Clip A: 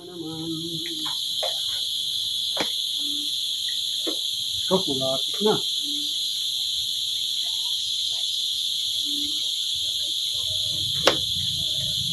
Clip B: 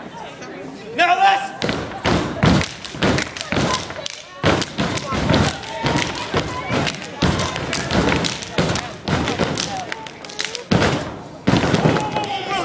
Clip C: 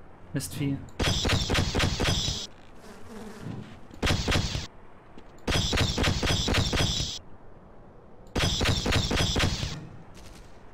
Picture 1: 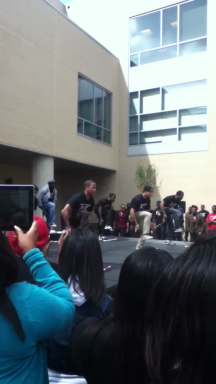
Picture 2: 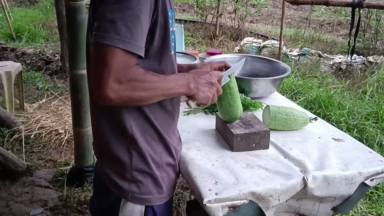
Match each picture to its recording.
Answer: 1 B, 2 A